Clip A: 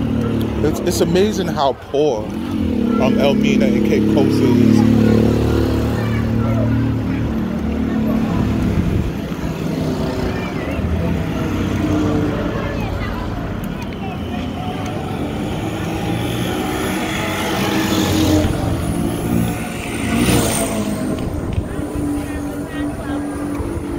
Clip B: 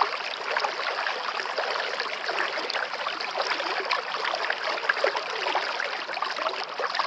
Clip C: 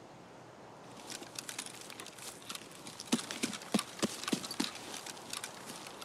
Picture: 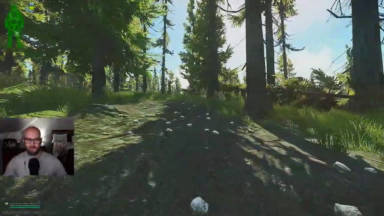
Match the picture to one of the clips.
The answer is C